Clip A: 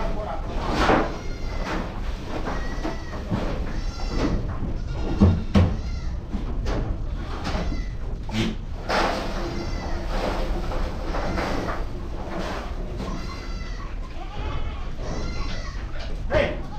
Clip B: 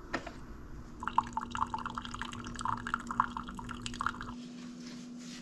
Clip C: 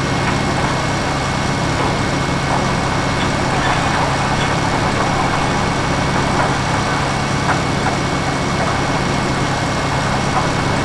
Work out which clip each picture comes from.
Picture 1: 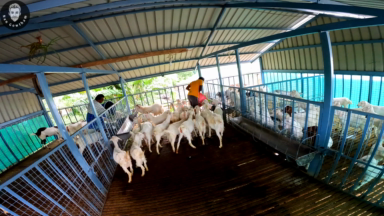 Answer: A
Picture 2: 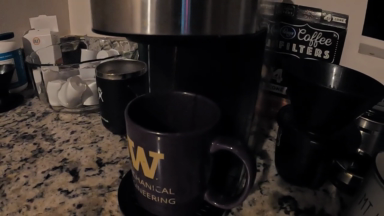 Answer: B